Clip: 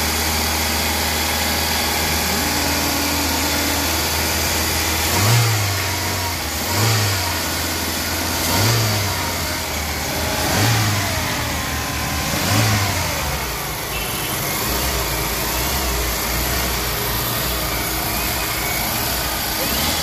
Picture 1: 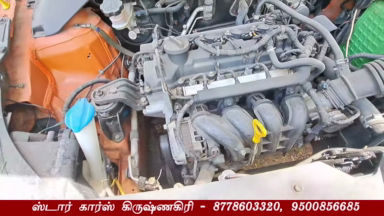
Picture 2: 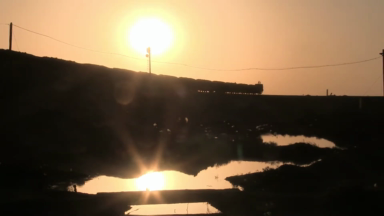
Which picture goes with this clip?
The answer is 1